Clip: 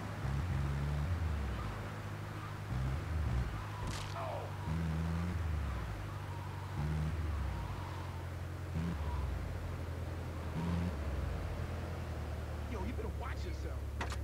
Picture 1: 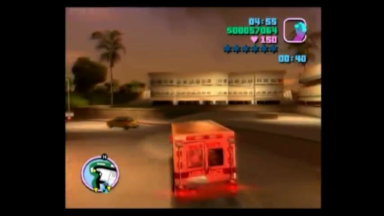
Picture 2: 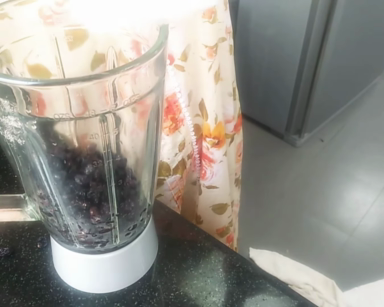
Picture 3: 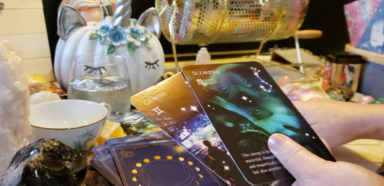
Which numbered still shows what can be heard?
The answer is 1